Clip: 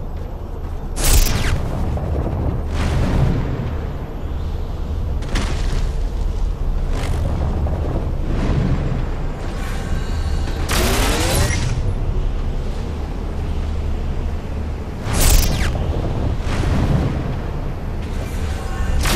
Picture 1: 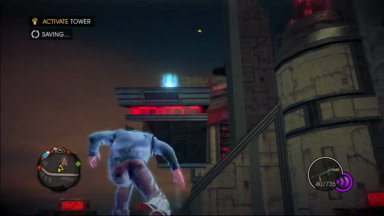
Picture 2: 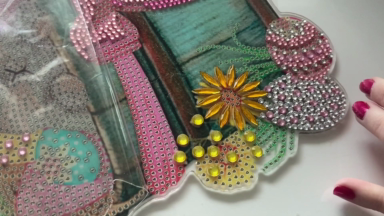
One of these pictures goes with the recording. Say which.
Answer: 1